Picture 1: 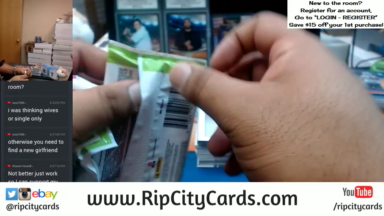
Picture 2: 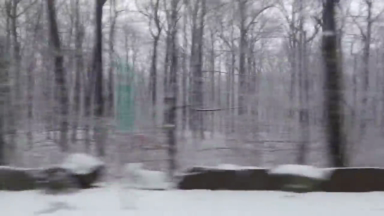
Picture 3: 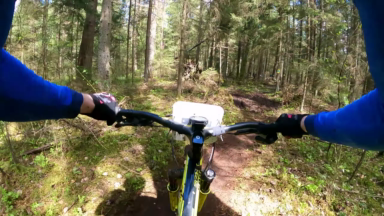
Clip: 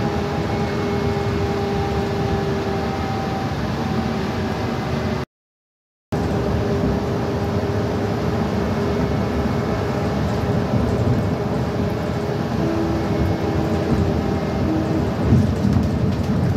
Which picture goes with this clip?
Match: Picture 2